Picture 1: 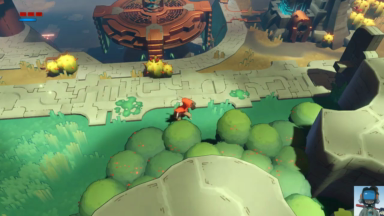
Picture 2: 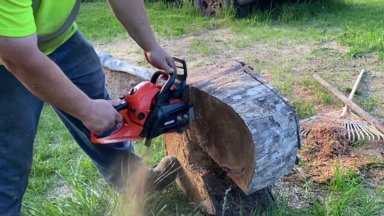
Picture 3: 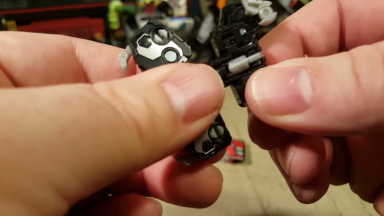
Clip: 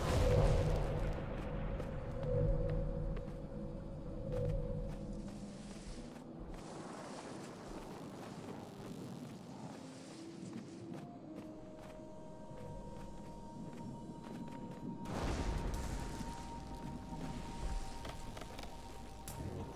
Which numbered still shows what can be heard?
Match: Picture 1